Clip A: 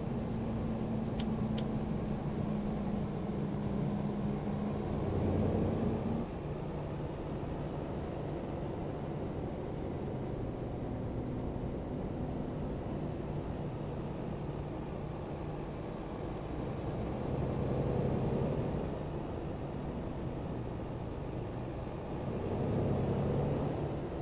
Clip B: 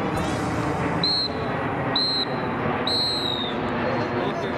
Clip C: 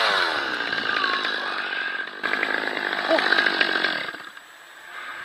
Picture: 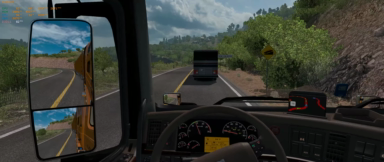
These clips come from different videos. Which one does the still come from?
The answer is A